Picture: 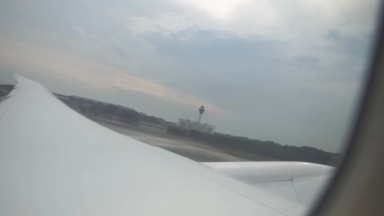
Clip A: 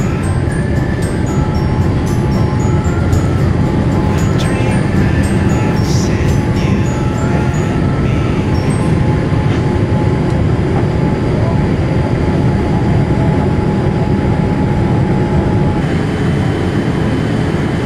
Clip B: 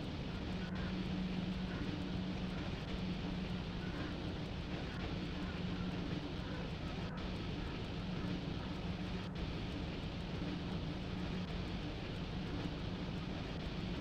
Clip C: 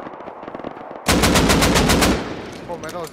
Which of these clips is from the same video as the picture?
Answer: A